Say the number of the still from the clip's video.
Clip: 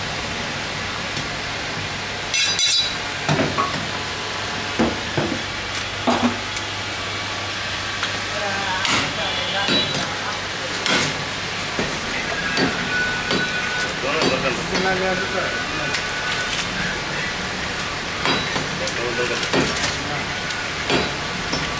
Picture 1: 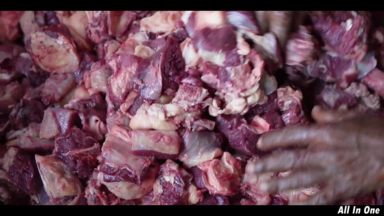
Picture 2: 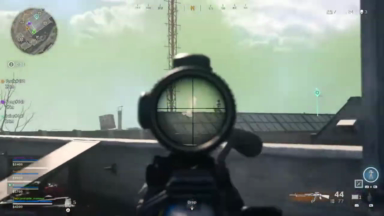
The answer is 1